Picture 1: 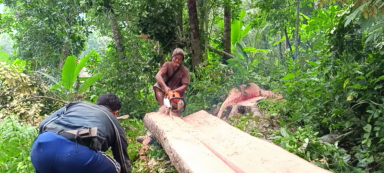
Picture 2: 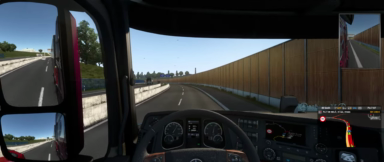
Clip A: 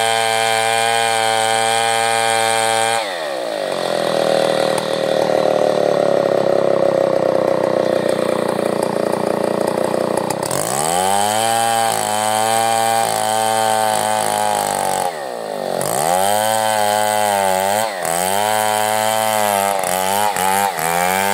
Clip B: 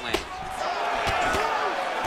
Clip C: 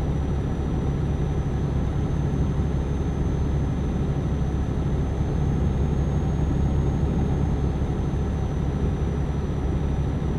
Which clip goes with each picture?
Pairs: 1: A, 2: C